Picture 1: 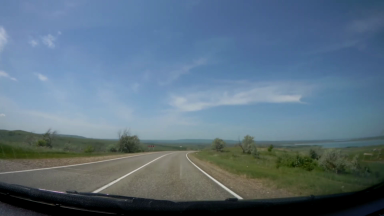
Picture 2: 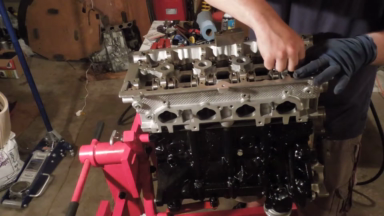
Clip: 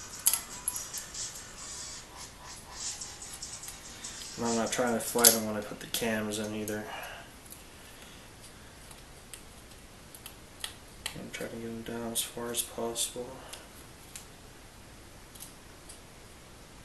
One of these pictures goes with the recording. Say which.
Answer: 2